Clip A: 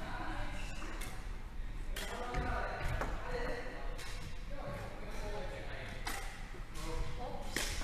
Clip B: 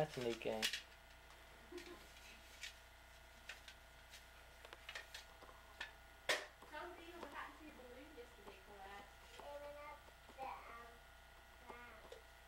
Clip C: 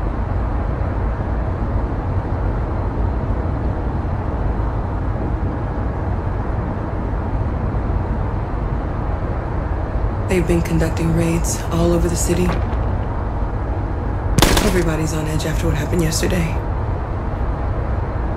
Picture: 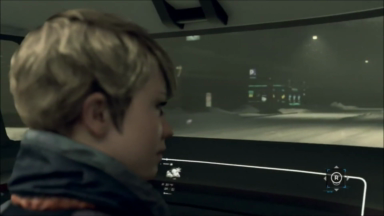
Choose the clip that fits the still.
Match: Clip C